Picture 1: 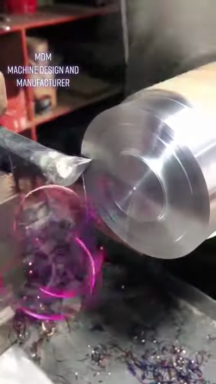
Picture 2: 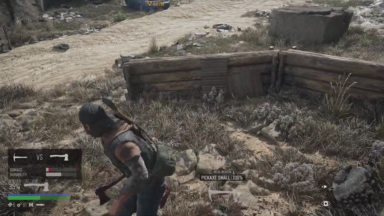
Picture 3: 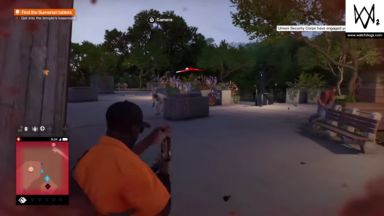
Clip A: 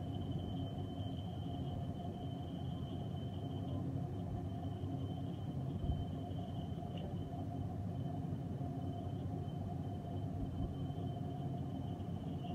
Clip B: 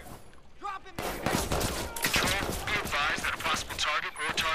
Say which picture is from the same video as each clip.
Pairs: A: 1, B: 3